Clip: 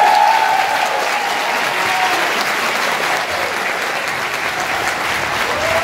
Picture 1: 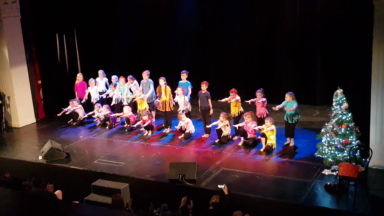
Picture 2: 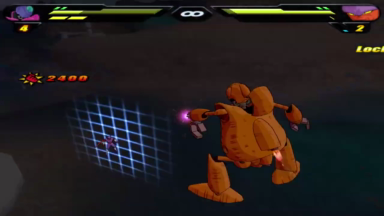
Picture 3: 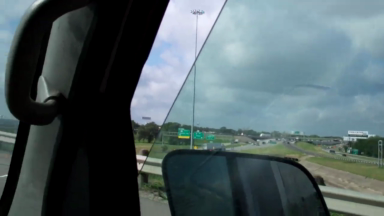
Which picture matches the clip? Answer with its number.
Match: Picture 1